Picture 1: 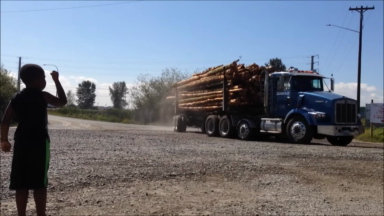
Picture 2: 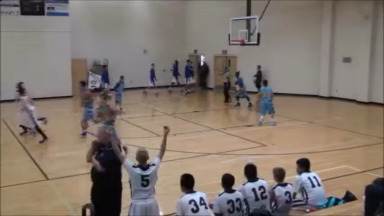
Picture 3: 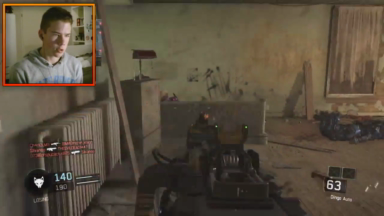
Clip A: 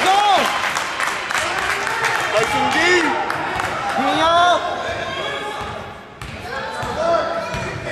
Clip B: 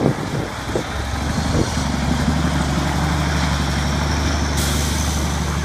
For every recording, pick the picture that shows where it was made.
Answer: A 2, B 1